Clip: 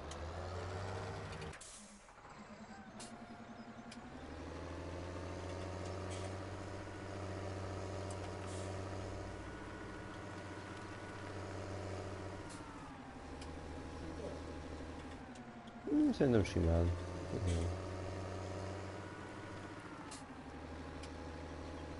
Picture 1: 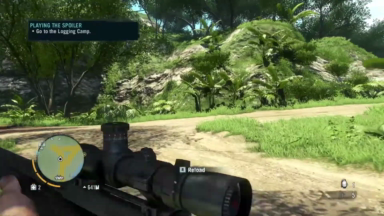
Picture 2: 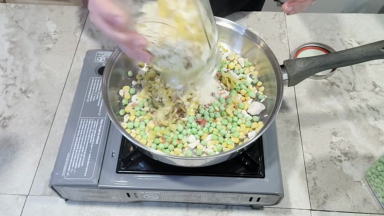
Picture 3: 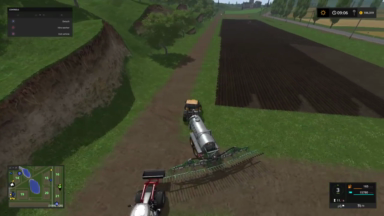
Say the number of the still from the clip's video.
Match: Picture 3